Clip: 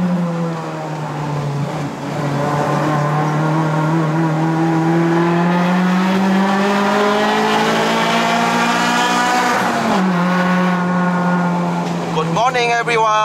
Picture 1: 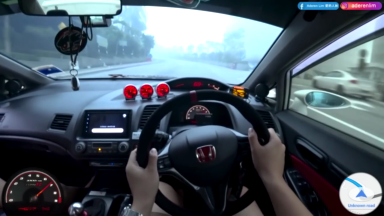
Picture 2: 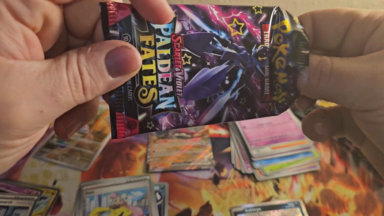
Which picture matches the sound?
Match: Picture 1